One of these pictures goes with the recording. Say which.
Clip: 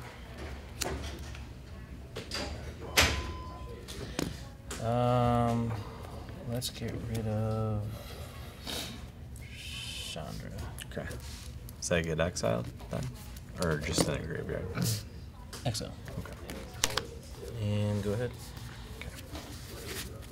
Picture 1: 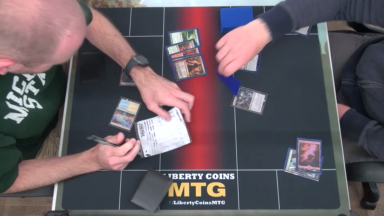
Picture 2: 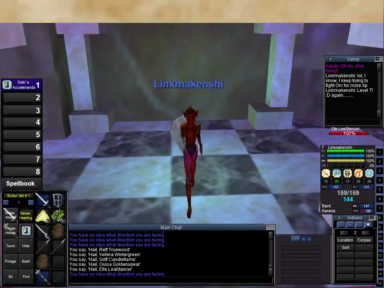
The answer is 1